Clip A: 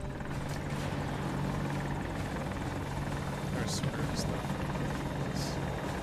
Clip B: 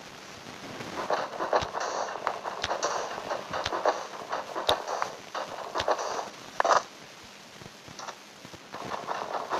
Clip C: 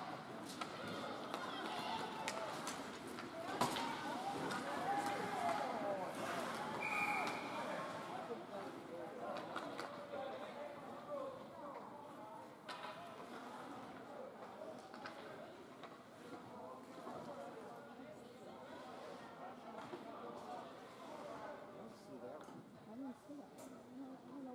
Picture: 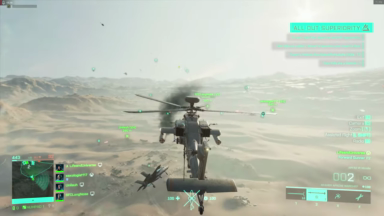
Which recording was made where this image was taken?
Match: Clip A